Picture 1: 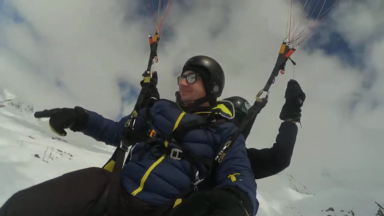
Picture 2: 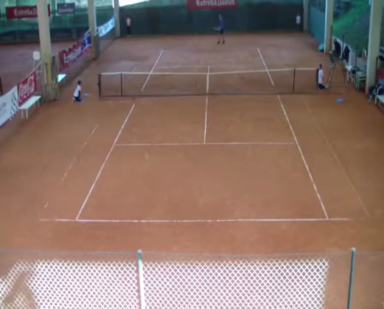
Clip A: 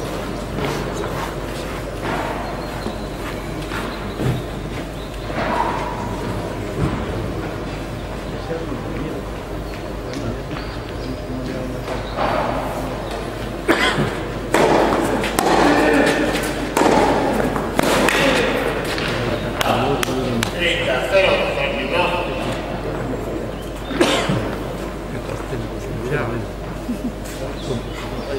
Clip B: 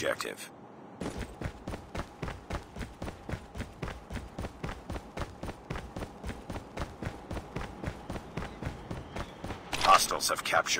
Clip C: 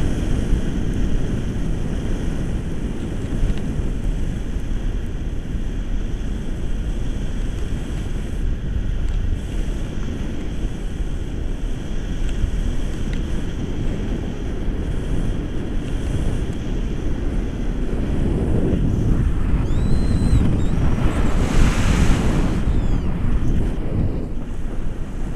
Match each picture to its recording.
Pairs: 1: C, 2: A